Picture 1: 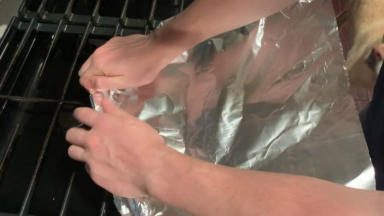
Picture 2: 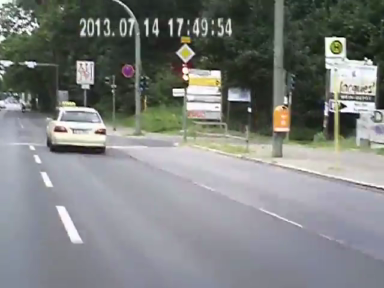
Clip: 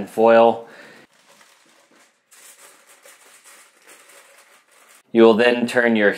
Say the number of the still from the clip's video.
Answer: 1